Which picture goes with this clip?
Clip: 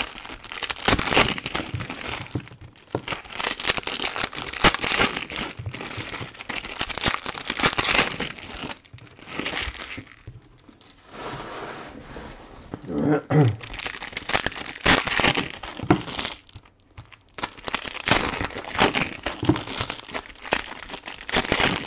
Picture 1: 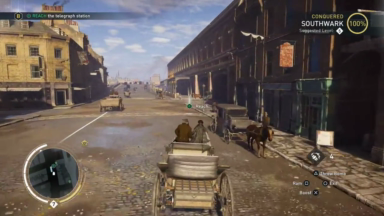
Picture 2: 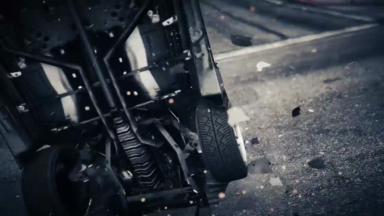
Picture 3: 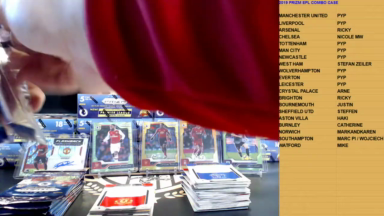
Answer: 3